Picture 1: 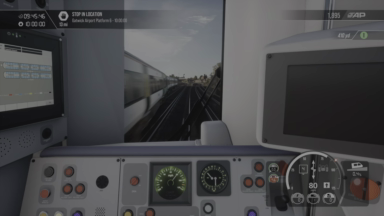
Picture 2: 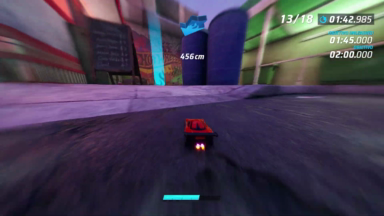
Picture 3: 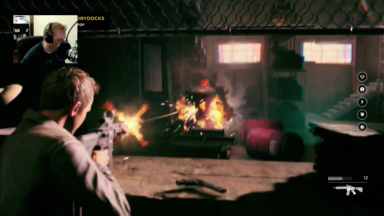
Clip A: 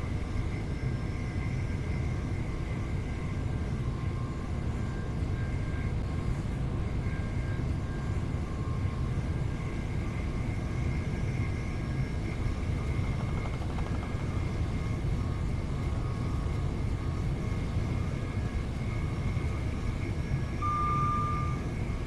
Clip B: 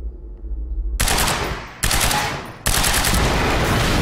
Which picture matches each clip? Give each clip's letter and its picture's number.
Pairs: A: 1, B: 3